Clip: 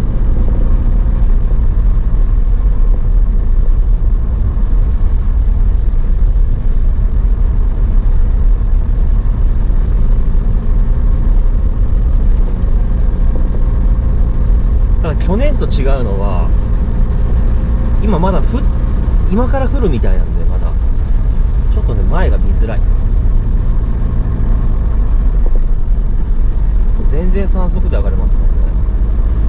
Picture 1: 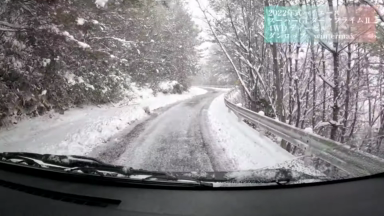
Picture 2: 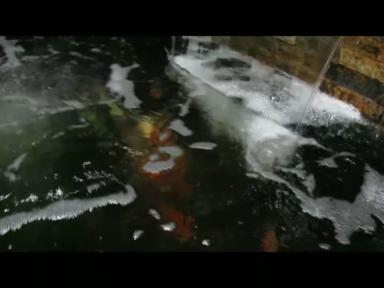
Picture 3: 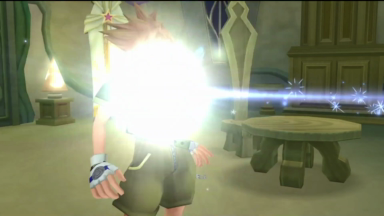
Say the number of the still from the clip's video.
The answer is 1